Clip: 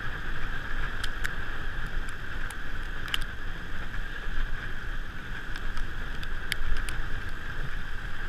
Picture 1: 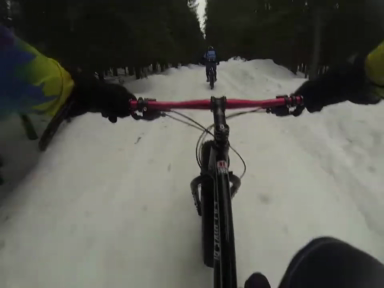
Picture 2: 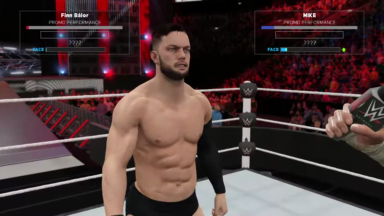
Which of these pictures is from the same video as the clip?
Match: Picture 1